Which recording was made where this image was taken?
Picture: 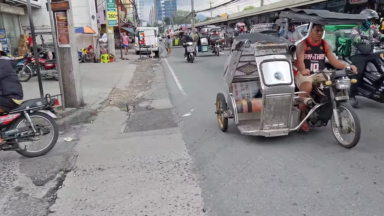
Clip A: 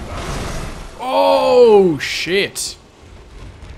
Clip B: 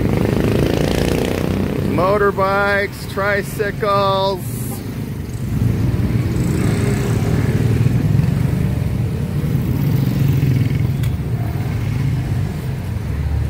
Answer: B